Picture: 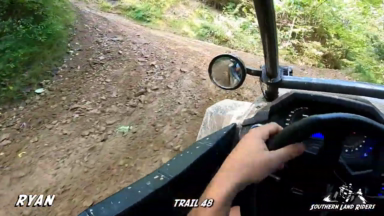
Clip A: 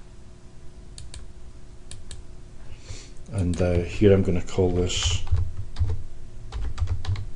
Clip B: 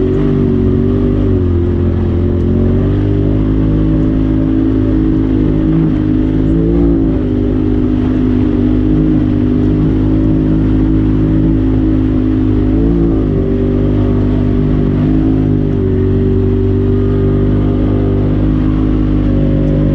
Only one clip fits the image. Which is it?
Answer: B